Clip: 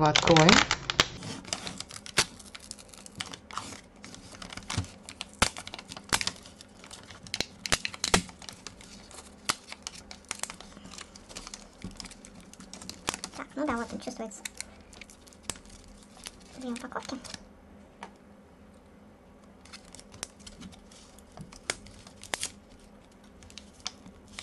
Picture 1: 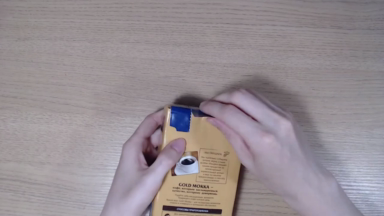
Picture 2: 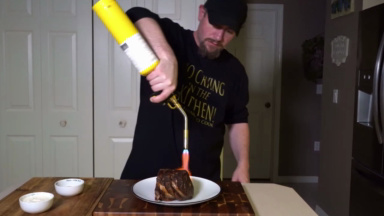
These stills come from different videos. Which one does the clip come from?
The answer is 1